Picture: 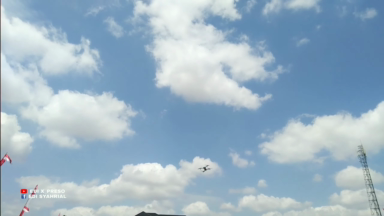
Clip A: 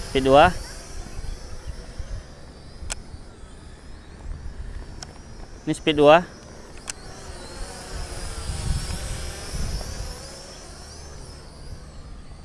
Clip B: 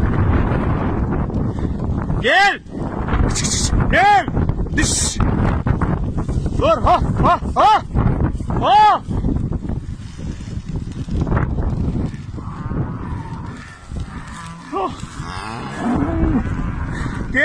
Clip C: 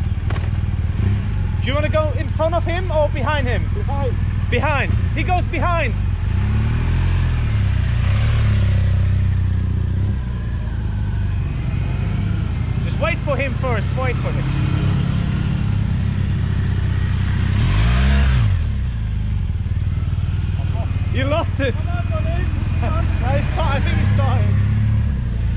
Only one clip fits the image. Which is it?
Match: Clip A